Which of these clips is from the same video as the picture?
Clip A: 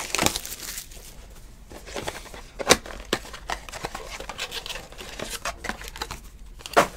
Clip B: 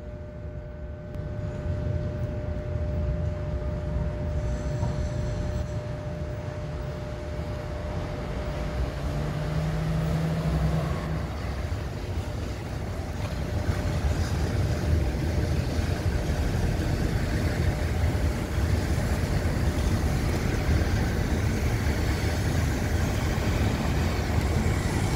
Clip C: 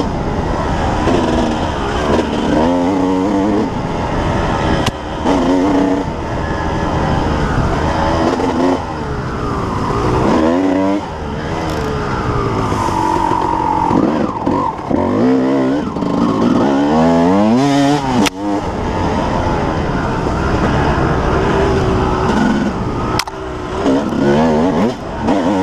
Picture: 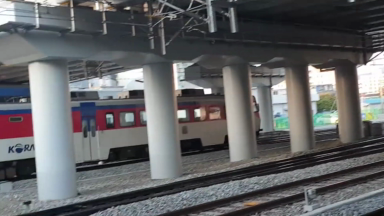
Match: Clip B